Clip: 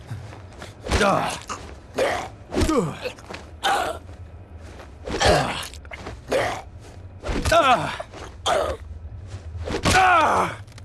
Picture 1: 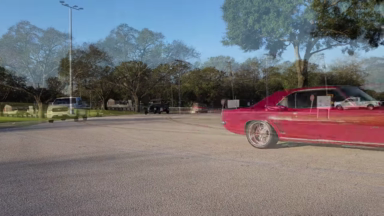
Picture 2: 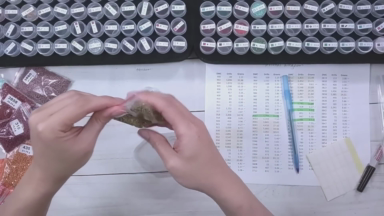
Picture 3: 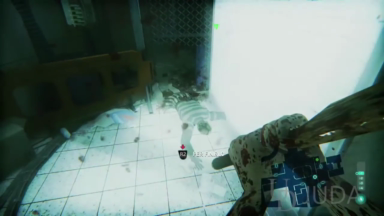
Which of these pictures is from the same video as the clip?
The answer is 3